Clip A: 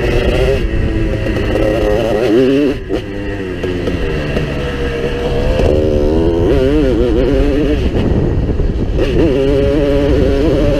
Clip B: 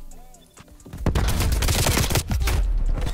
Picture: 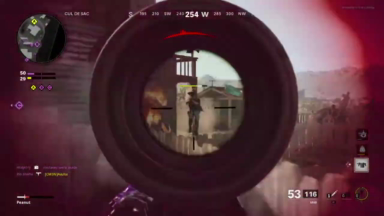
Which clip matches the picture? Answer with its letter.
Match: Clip B